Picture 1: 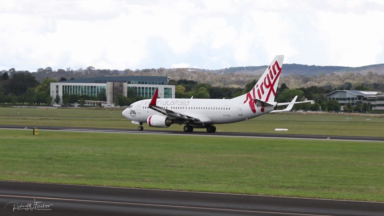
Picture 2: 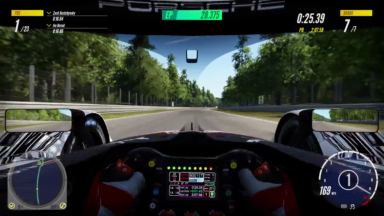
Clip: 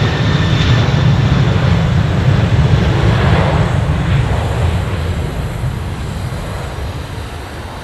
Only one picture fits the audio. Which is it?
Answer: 1